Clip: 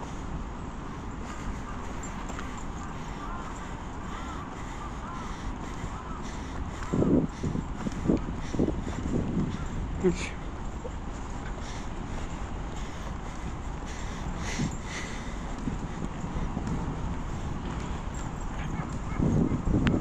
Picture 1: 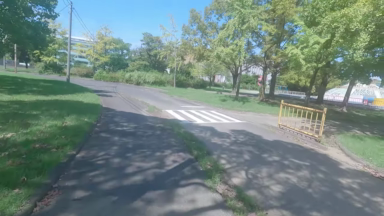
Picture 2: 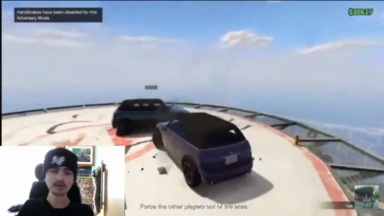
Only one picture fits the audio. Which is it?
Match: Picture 1